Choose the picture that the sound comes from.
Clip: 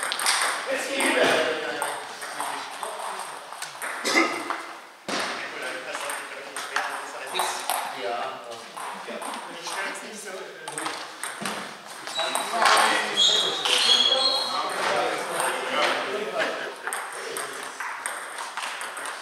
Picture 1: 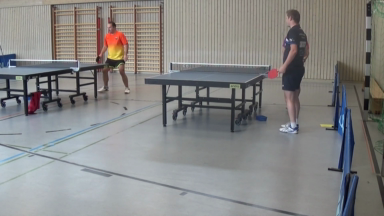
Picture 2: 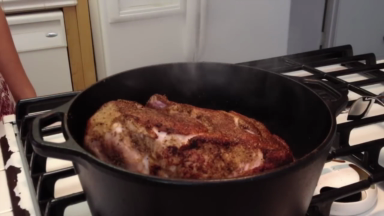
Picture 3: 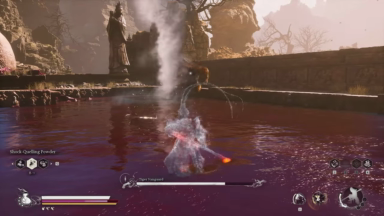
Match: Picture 1